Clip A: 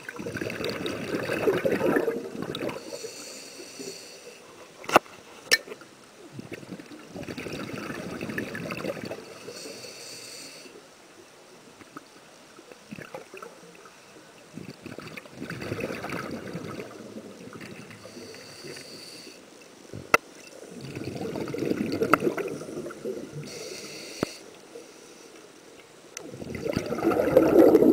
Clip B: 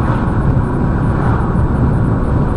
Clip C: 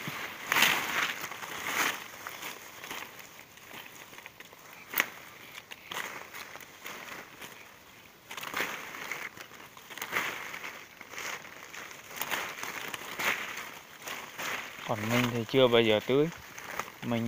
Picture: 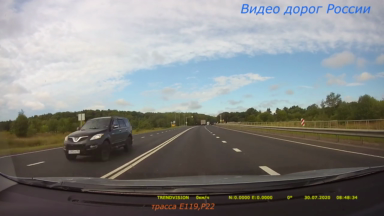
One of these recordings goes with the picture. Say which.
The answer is B